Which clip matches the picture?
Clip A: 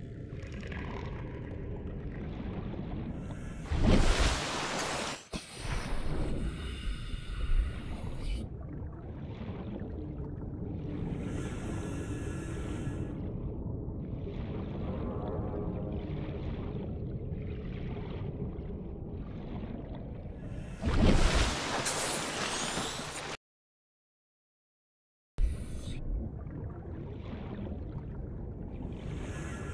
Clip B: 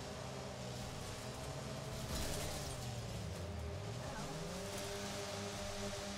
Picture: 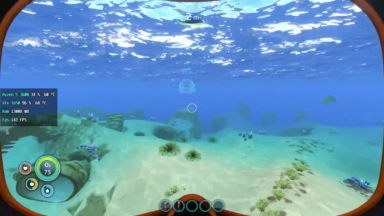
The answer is A